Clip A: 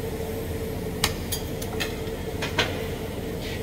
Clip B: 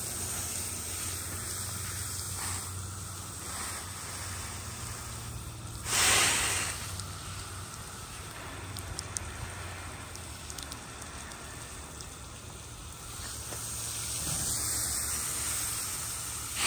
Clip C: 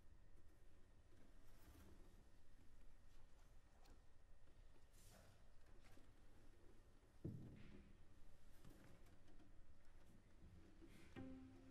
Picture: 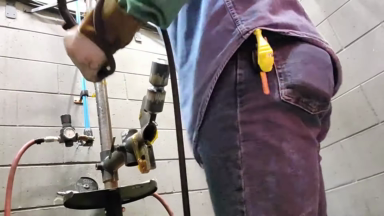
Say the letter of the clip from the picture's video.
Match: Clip A